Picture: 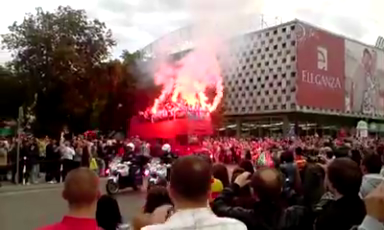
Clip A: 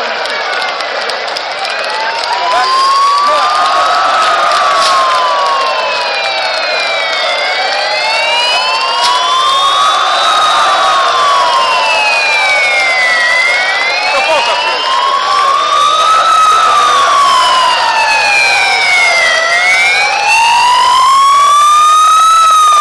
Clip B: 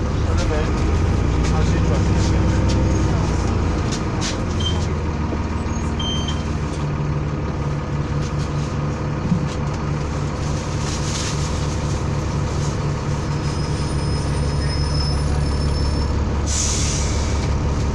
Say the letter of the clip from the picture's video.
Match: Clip A